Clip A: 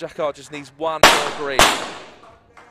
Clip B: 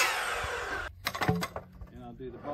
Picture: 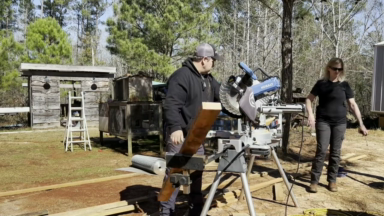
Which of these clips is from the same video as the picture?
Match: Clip B